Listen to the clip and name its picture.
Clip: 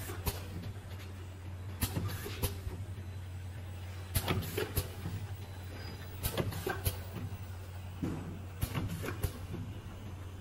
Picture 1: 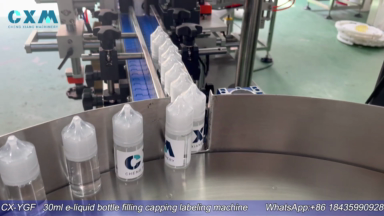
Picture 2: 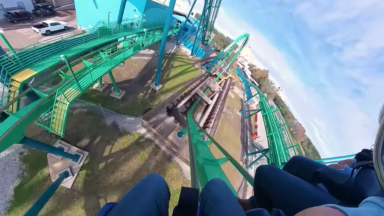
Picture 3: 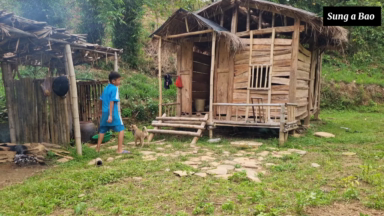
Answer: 1